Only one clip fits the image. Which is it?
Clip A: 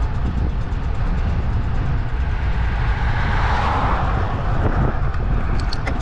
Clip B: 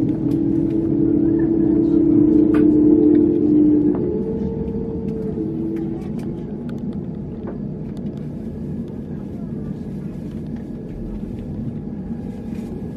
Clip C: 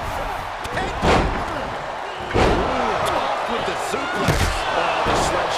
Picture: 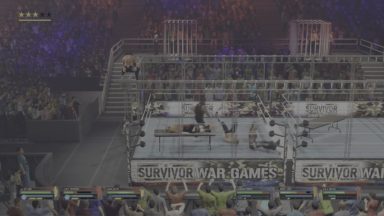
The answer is C